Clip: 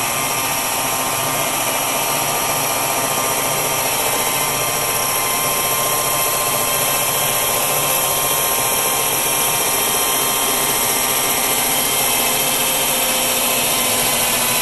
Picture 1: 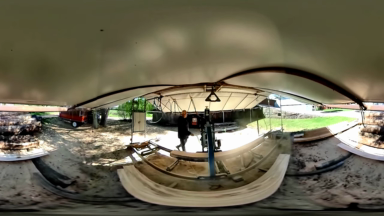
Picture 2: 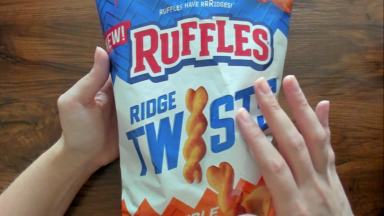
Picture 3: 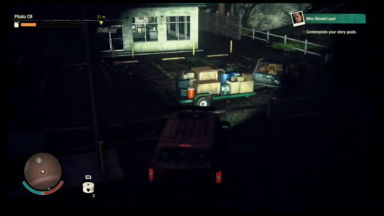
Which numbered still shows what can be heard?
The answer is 1